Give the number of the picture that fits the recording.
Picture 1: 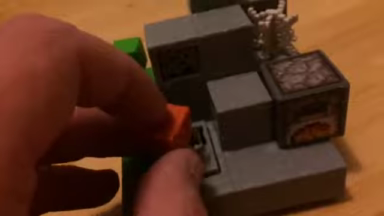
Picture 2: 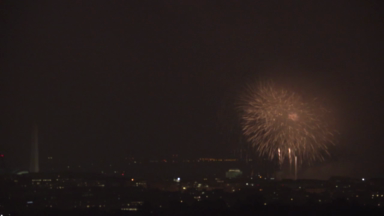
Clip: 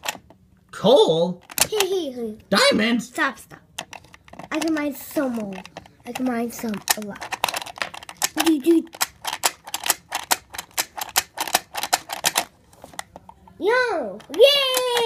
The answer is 1